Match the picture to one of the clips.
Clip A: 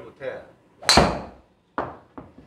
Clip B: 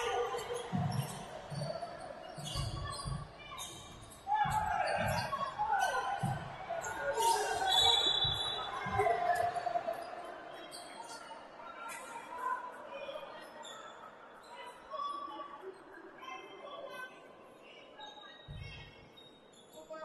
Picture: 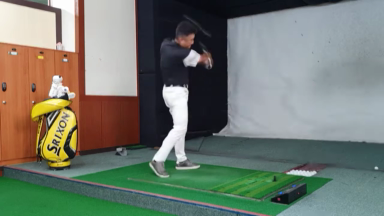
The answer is A